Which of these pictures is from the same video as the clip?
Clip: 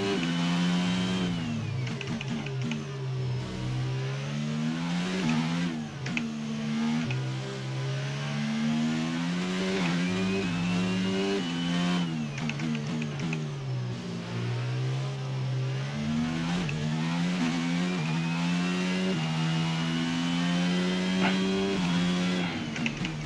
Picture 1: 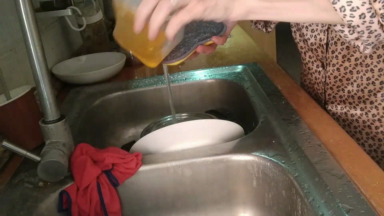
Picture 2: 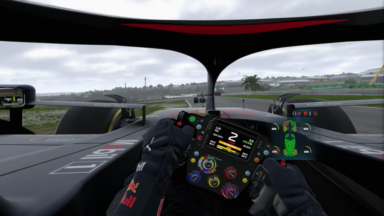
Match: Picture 2